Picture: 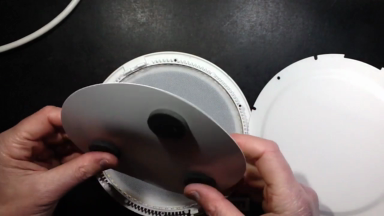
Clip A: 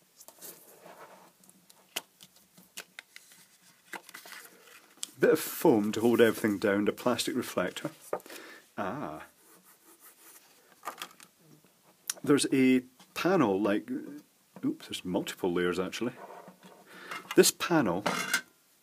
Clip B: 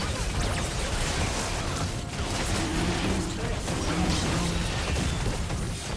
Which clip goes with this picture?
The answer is A